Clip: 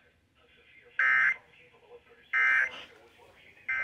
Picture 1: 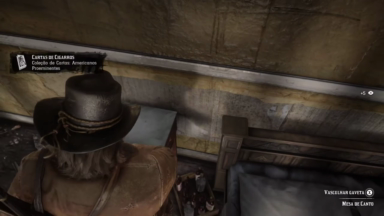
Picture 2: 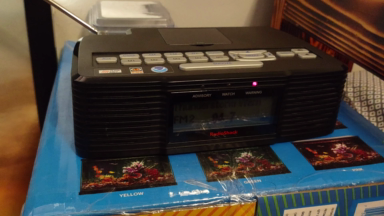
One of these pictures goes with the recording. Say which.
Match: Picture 2